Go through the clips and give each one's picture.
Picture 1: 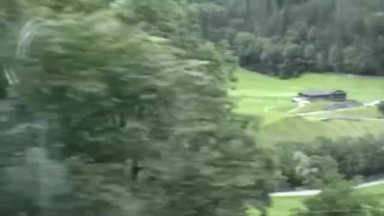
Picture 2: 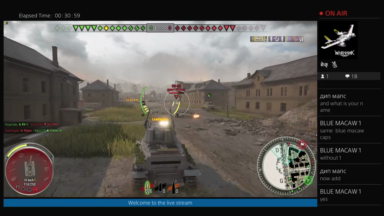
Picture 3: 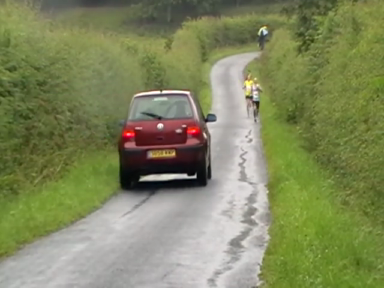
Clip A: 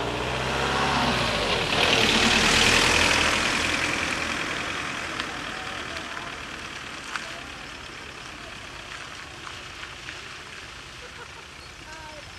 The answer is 3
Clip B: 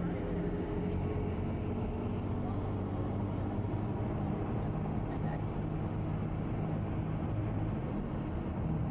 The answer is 1